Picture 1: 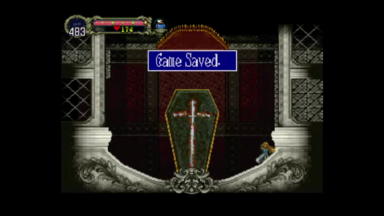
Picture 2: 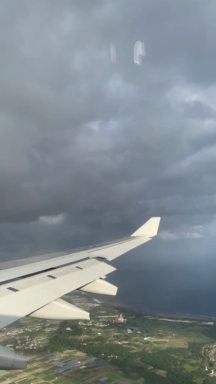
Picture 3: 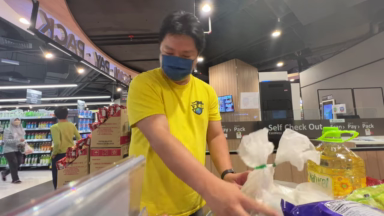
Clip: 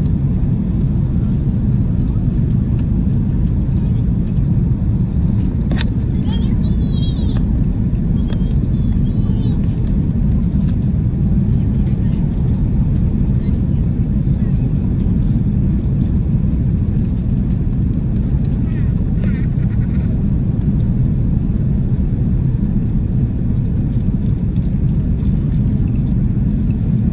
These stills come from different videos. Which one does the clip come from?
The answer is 2